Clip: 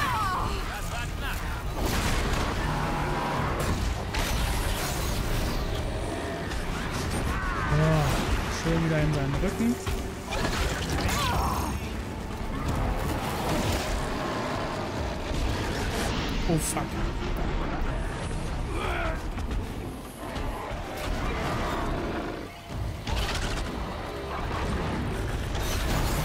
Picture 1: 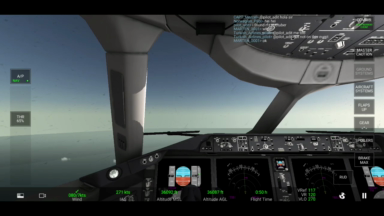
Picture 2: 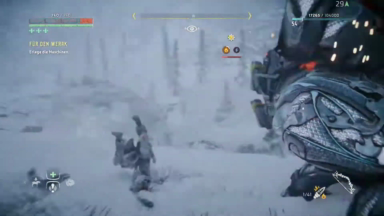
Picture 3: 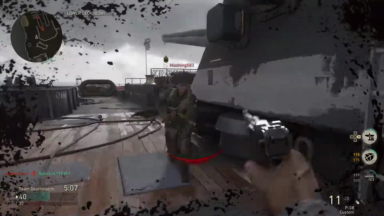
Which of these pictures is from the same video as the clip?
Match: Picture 2